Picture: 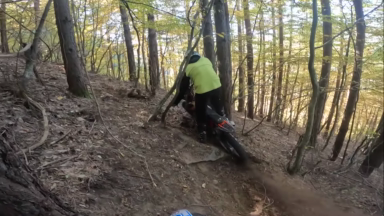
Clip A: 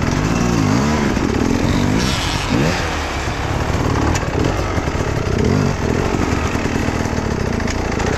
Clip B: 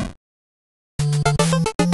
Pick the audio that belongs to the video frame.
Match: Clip A